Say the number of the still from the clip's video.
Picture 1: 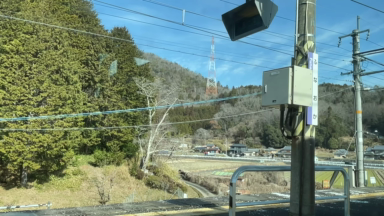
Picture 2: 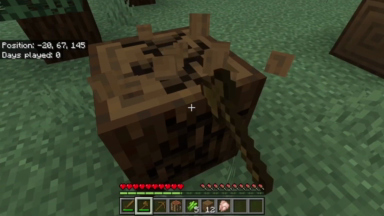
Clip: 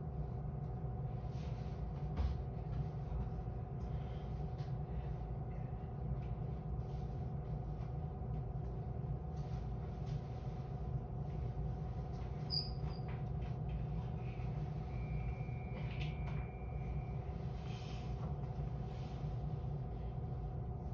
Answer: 1